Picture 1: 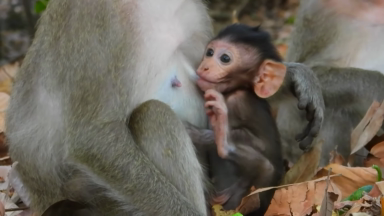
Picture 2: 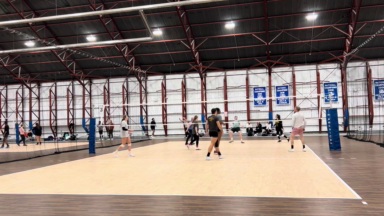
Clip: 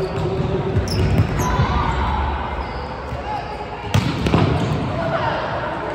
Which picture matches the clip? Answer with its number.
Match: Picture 2